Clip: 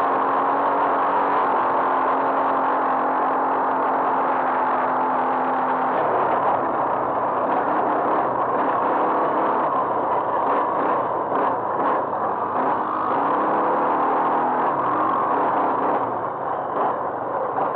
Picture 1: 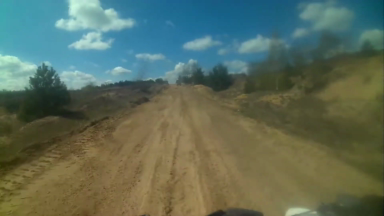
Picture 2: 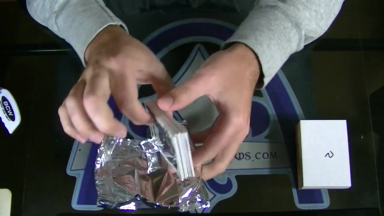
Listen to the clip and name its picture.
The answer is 1